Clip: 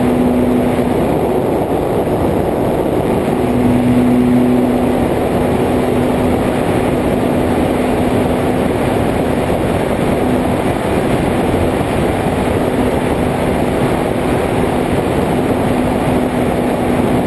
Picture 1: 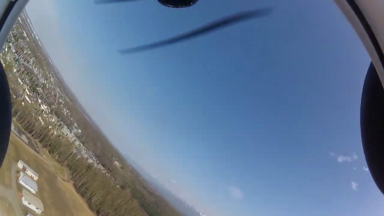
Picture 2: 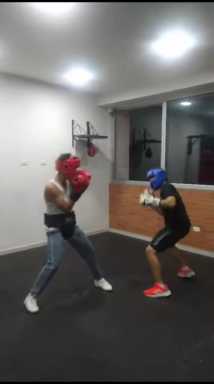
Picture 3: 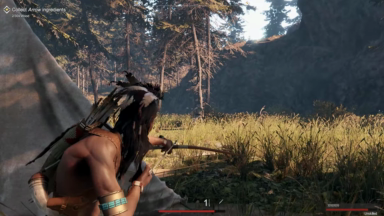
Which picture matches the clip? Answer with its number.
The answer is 1